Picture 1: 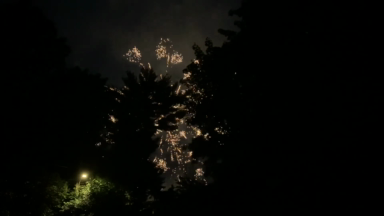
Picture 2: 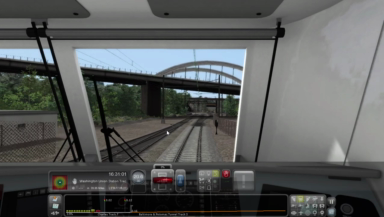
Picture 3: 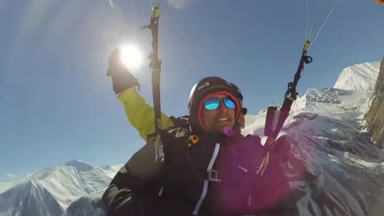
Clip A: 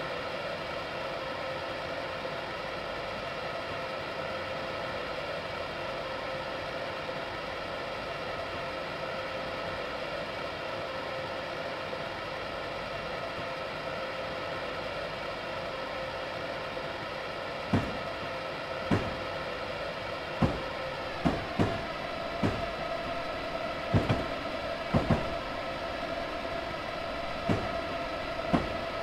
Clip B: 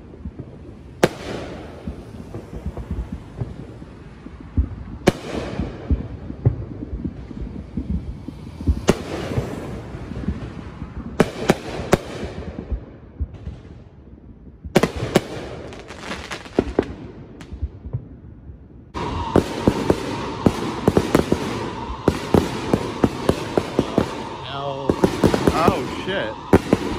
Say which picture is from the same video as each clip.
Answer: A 2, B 1